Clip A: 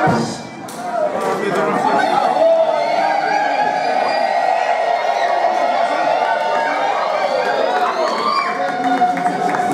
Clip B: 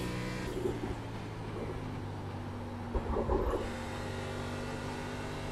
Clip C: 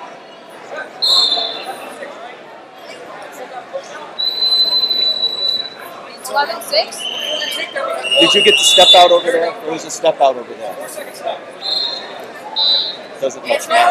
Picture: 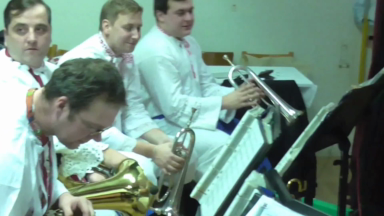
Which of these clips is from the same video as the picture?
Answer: A